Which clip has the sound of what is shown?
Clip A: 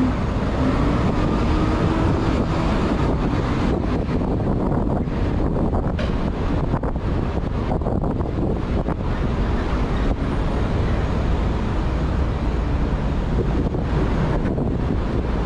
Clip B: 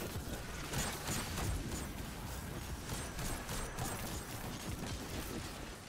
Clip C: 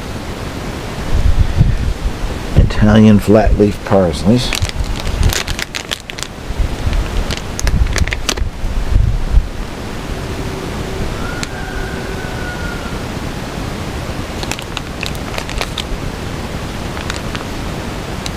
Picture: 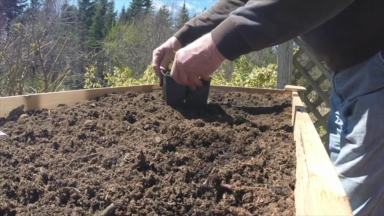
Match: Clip C